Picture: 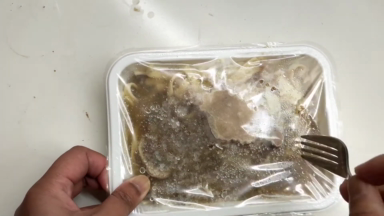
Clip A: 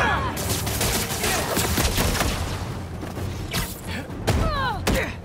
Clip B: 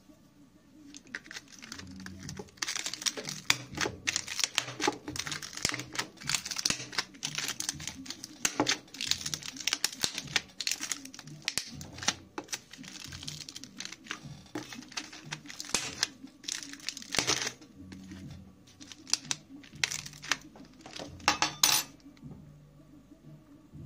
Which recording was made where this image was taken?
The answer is B